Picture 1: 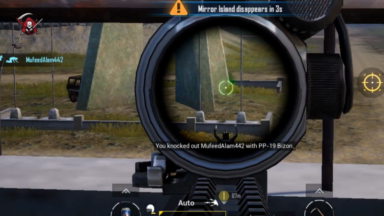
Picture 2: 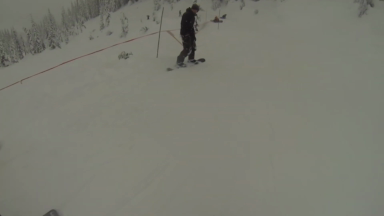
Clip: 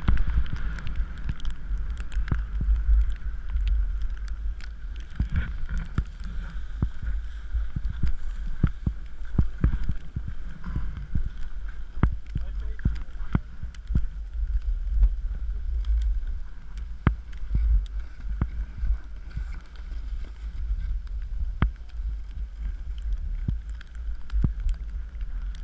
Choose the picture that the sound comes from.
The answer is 2